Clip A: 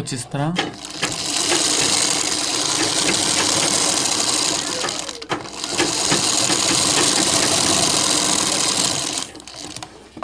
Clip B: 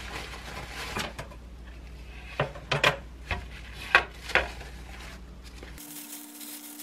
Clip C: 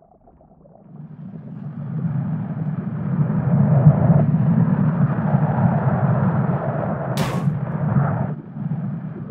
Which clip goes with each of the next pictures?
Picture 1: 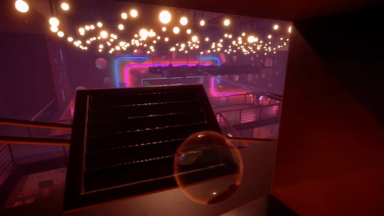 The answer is C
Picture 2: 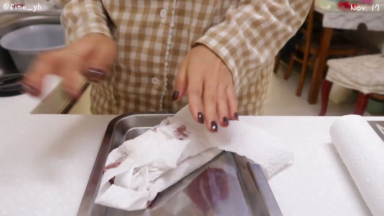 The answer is B